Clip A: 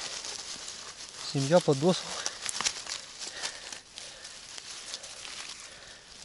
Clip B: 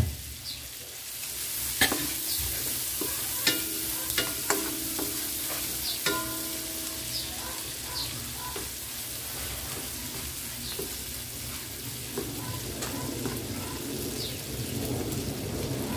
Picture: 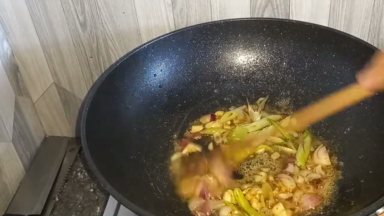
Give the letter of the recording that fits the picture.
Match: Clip B